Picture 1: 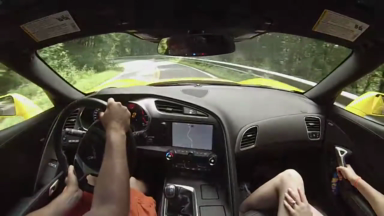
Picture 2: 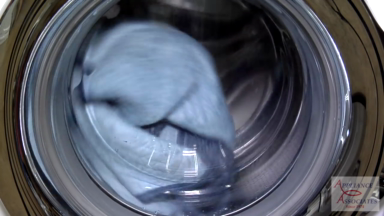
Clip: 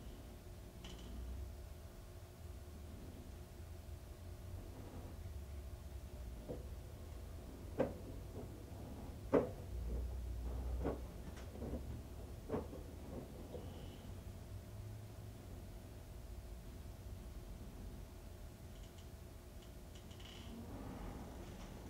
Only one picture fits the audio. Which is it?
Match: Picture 2